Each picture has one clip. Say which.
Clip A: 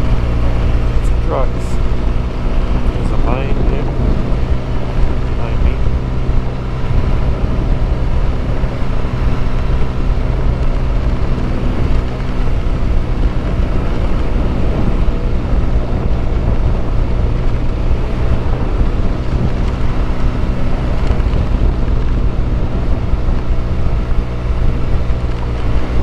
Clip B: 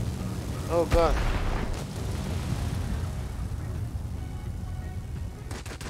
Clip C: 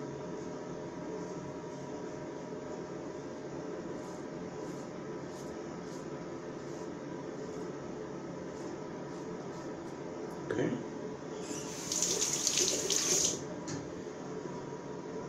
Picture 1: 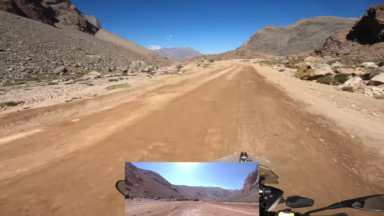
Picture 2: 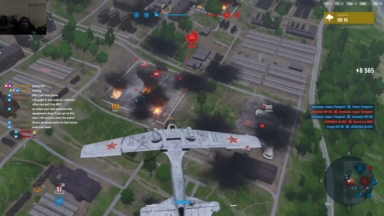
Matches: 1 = A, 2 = B